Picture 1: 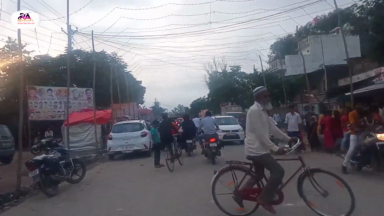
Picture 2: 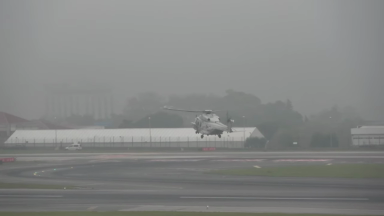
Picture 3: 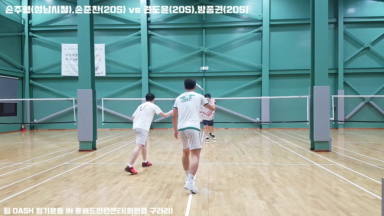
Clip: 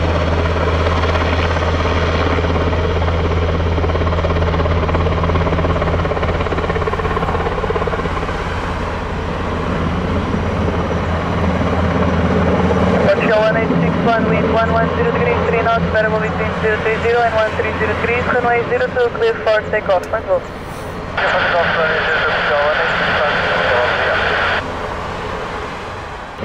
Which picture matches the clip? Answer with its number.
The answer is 2